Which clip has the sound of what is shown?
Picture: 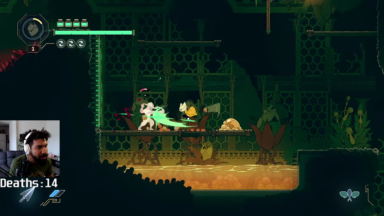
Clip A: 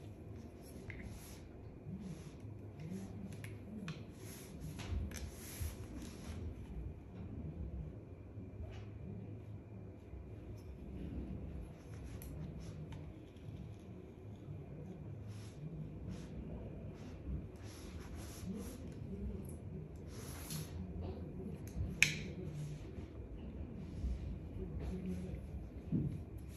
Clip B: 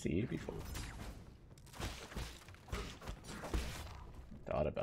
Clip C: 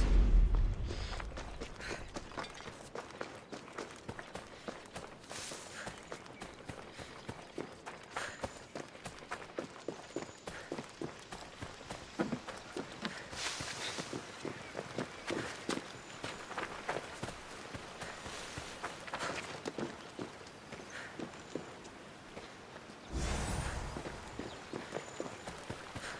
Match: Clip B